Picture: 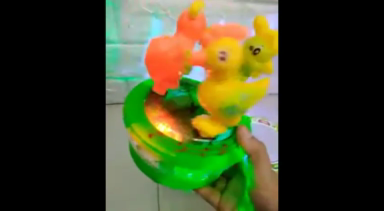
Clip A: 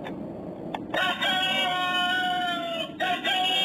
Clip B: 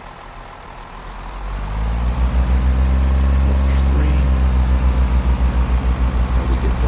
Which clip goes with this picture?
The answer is A